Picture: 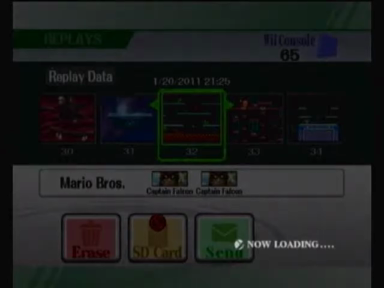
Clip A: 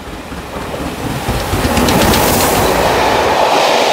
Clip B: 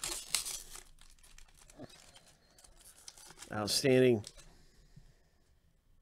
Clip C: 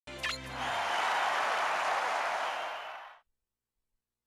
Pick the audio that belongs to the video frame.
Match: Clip C